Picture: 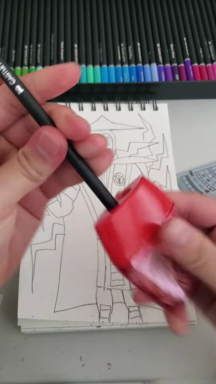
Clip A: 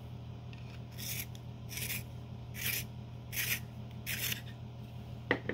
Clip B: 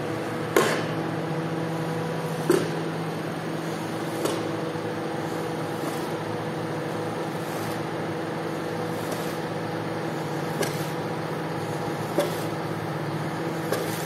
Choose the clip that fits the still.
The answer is A